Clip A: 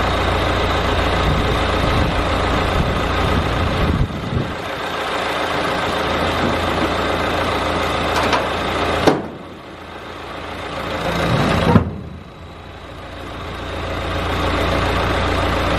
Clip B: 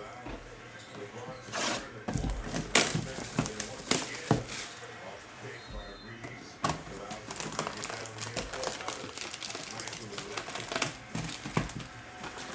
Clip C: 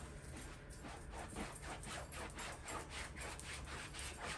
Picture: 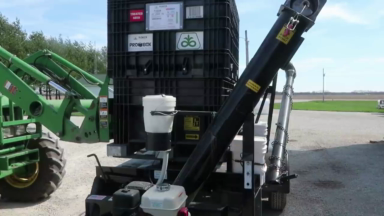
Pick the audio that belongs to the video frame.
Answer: A